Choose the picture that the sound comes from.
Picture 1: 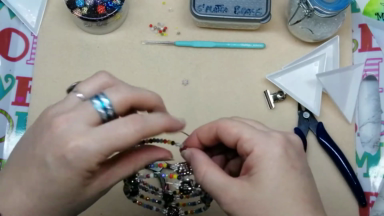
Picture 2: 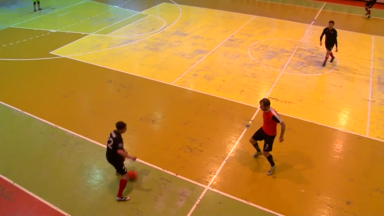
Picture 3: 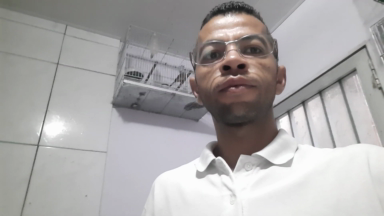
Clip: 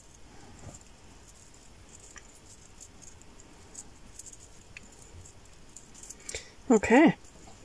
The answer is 1